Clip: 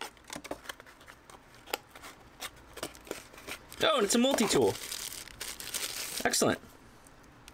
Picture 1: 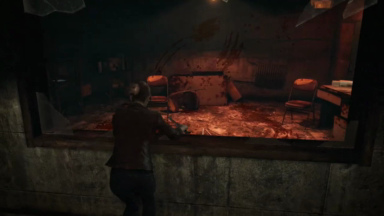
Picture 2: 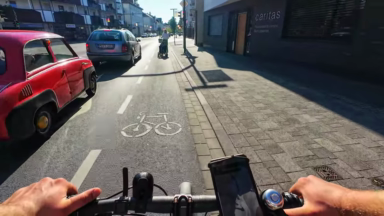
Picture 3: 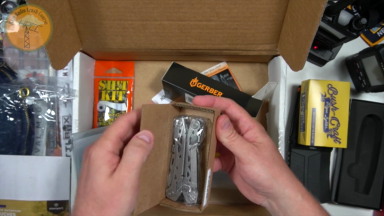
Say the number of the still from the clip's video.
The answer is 3